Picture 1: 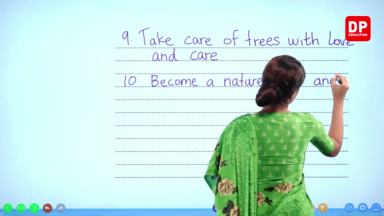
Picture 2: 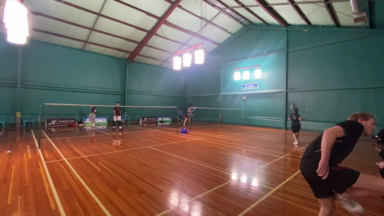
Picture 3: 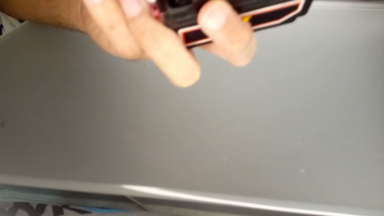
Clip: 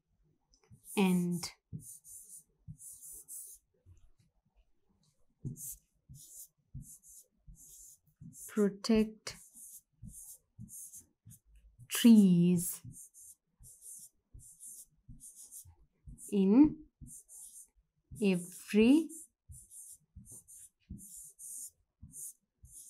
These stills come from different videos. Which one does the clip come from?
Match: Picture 1